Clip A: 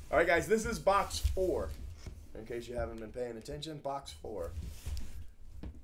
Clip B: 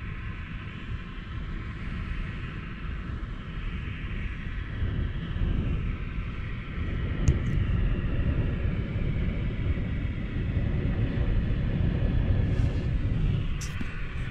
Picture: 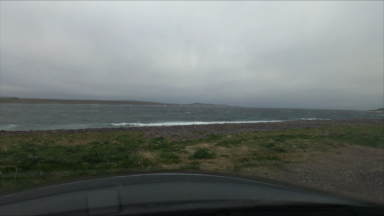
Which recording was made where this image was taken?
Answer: B